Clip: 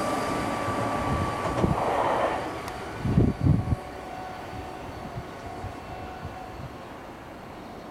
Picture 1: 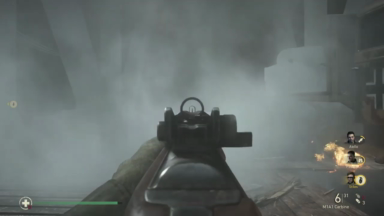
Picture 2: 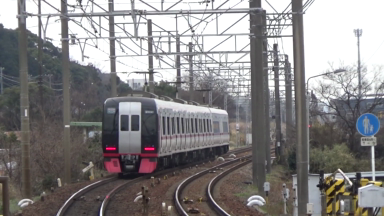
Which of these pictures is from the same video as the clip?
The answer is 2